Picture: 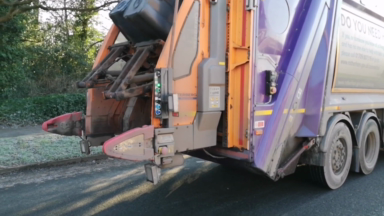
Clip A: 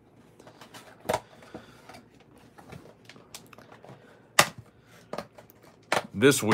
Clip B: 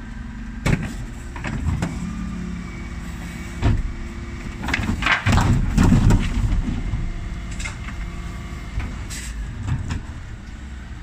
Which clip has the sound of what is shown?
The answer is B